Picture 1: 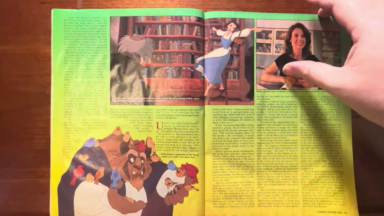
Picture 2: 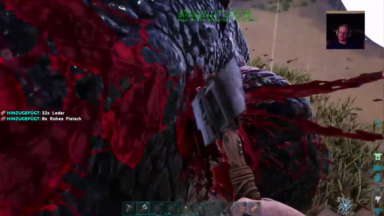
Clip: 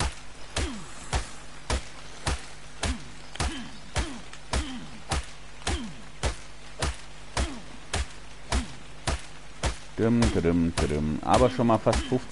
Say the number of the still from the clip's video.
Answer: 2